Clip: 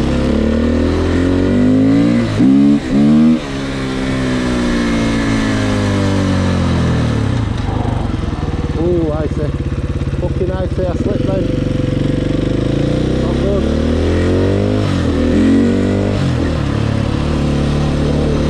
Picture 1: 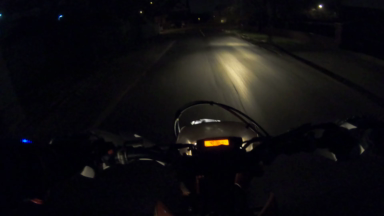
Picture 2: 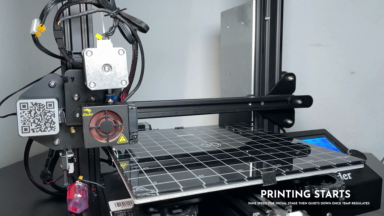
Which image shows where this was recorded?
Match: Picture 1